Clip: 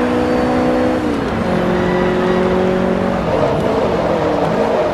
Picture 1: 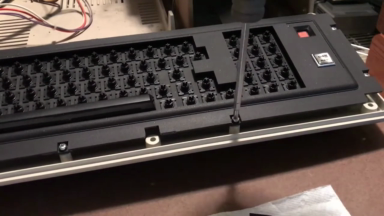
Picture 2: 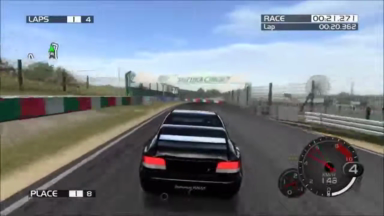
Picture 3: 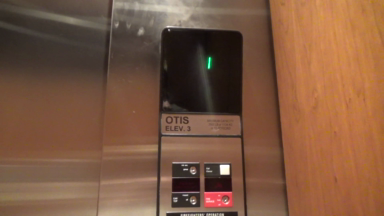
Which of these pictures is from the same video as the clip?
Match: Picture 2